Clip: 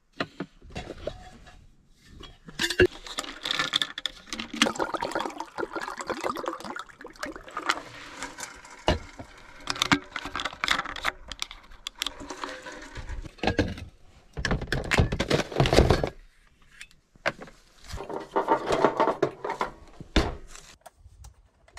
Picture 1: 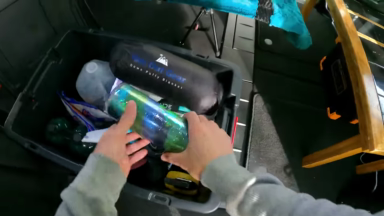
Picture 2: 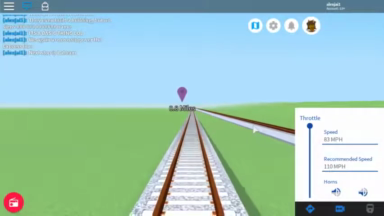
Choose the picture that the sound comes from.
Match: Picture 1